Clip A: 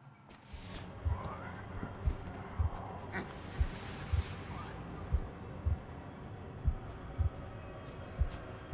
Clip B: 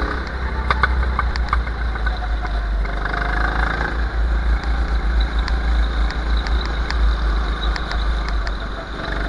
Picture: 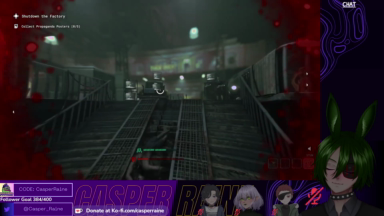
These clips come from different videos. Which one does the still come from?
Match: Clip A